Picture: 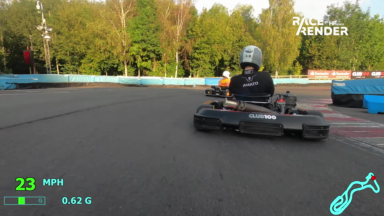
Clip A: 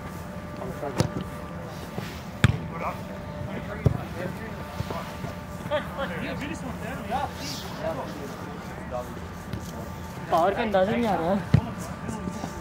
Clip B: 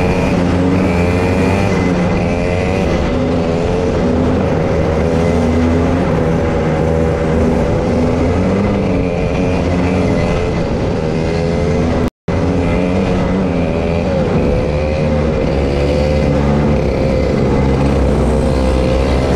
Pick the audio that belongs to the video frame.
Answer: B